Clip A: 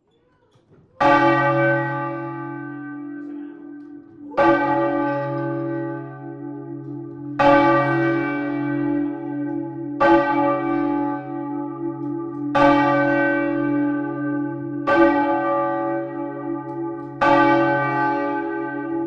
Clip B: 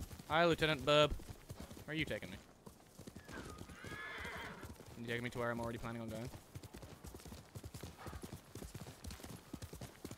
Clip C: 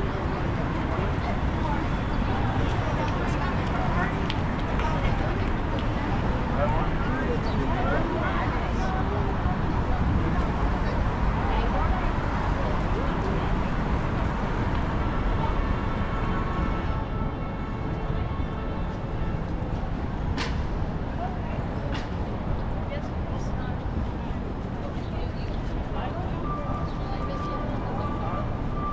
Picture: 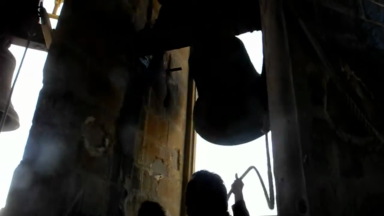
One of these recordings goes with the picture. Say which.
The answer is A